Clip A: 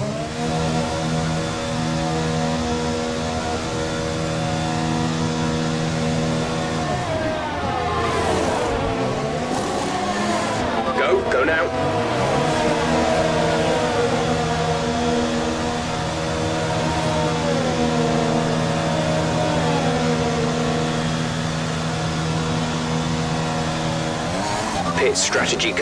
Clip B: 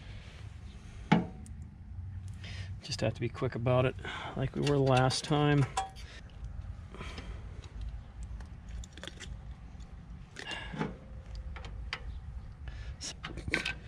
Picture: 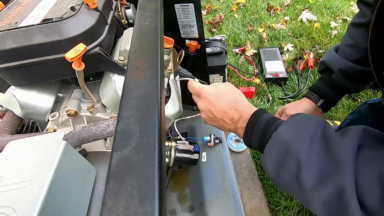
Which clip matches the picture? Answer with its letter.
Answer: B